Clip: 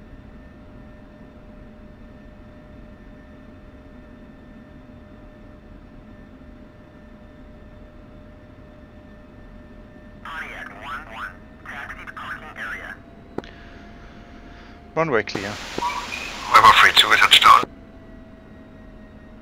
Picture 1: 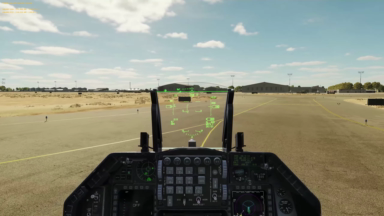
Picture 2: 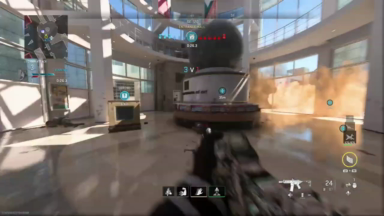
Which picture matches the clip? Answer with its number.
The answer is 1